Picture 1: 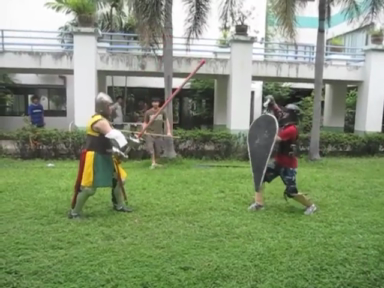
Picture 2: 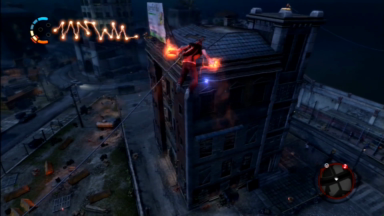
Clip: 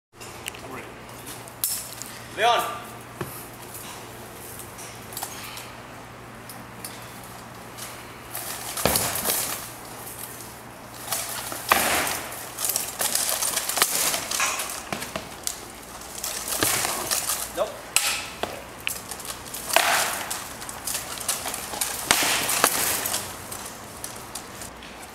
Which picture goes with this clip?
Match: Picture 1